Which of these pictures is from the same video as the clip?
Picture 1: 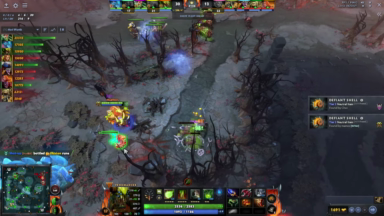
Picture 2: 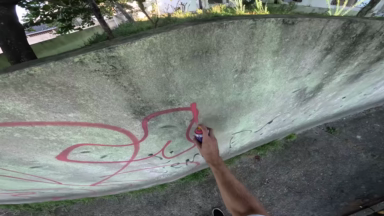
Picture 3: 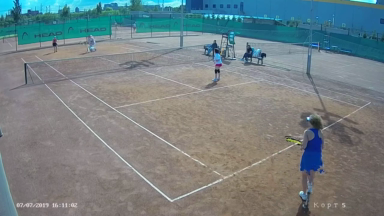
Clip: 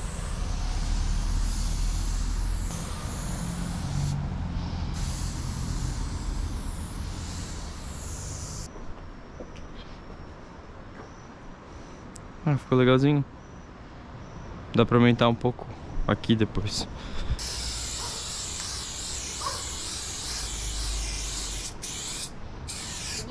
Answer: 2